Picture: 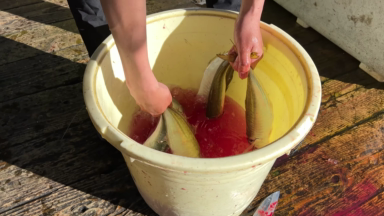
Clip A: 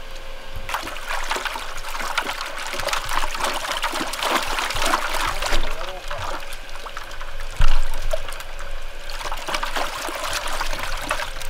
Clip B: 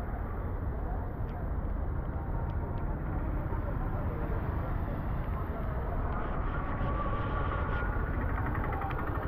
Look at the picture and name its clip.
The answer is A